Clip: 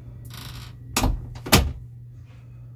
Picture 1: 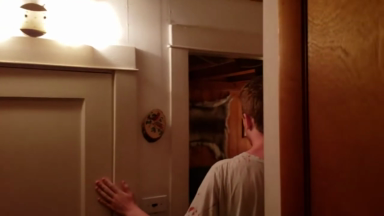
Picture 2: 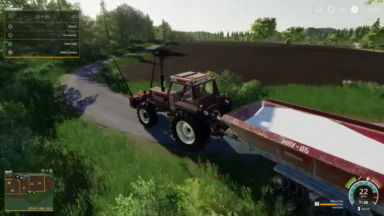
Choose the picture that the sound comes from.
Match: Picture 1